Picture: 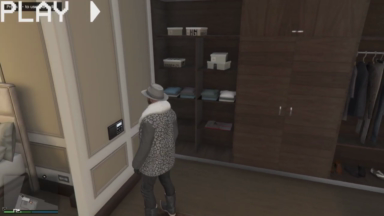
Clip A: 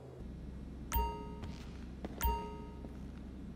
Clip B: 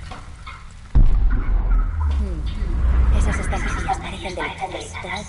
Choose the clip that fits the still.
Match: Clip A